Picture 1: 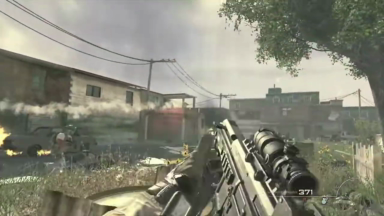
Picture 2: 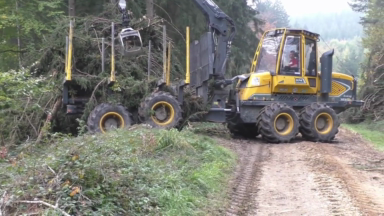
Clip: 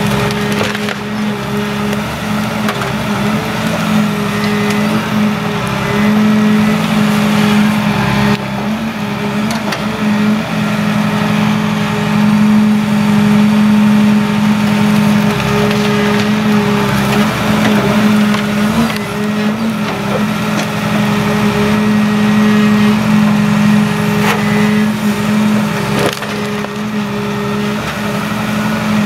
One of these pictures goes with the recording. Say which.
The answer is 2